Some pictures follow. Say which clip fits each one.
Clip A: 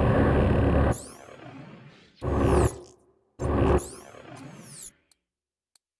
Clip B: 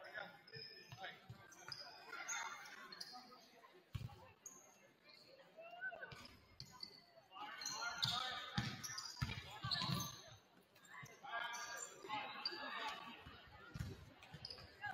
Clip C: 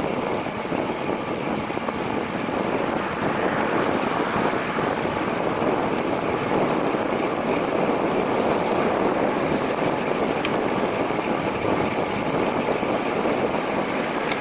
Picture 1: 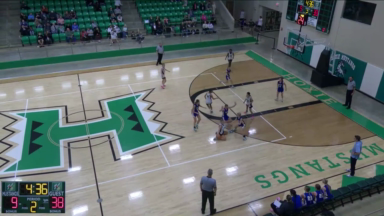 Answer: B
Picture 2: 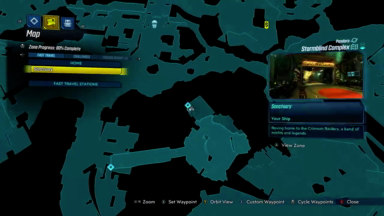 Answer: A